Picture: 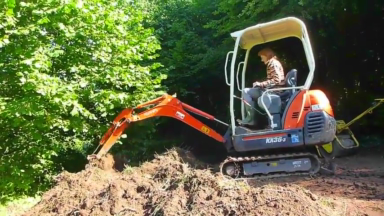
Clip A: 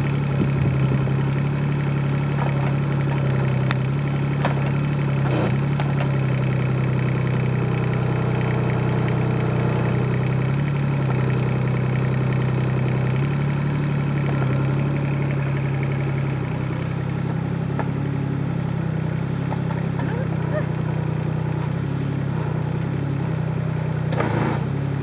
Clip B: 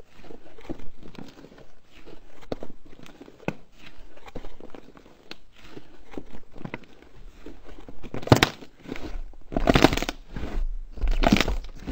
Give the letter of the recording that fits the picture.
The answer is A